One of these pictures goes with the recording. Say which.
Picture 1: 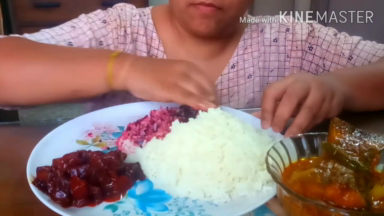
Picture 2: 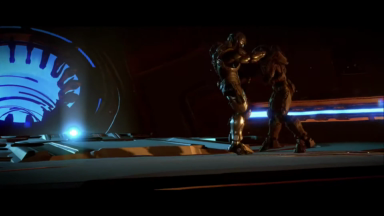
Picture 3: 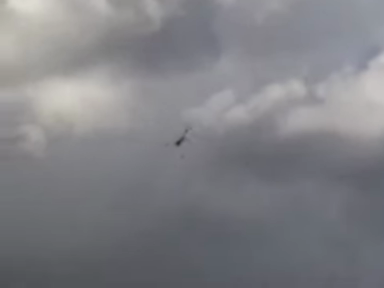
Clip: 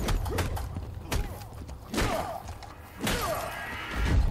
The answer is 2